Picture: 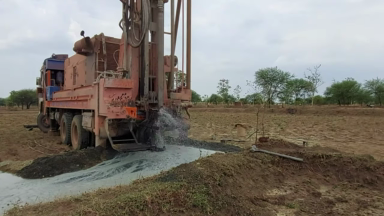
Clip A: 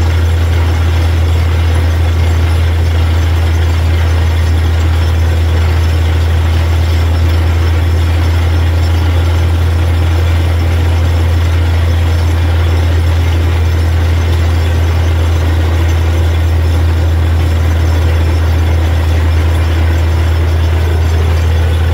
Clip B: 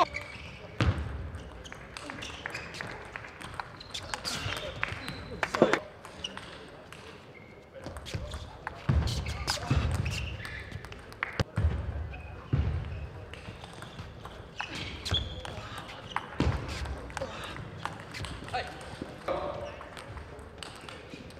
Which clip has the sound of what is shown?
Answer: A